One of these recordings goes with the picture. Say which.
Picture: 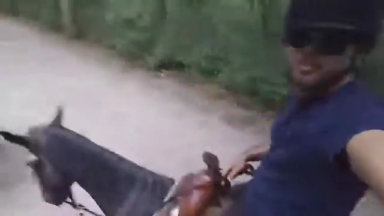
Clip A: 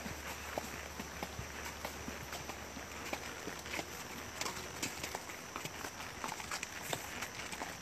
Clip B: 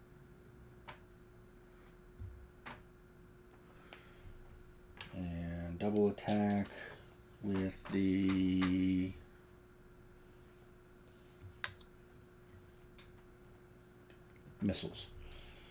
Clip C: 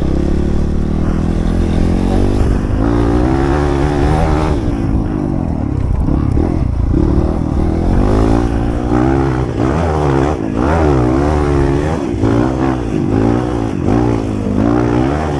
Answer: A